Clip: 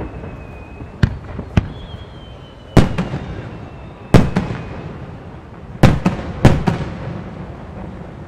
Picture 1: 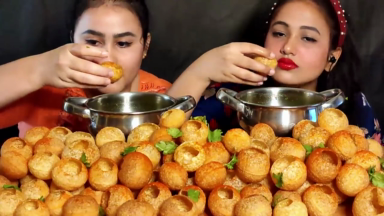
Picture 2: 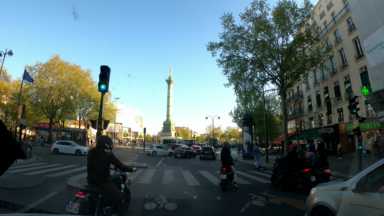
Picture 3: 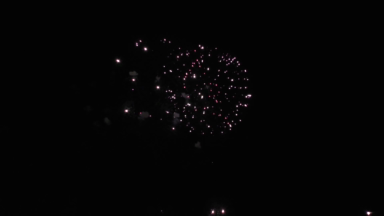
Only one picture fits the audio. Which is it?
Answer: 3